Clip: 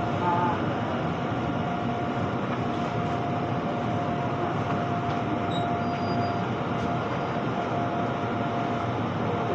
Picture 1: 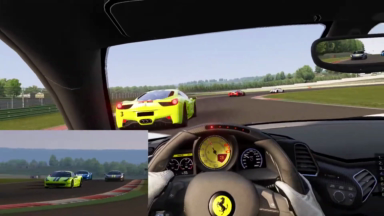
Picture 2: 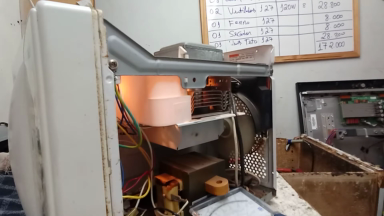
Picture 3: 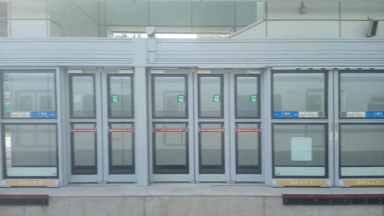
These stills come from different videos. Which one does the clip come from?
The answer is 3